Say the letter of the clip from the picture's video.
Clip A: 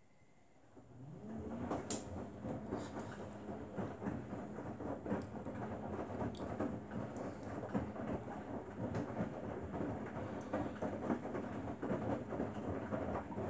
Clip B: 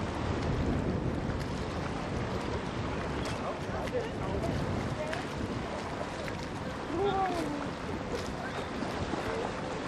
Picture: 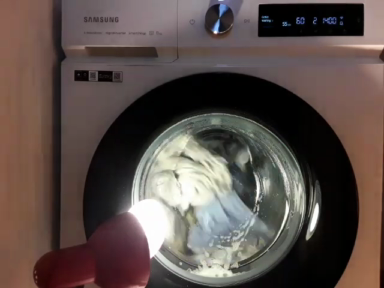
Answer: A